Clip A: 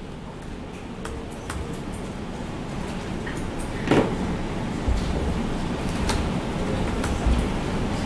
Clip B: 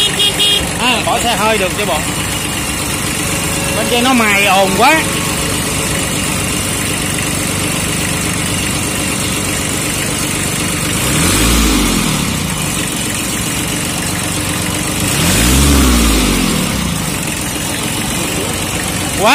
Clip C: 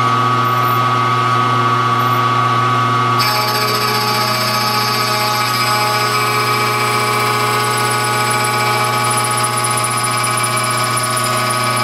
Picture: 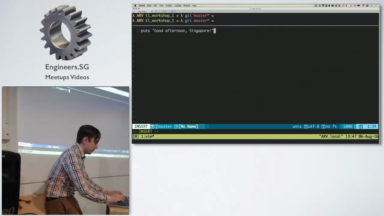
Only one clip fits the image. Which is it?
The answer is A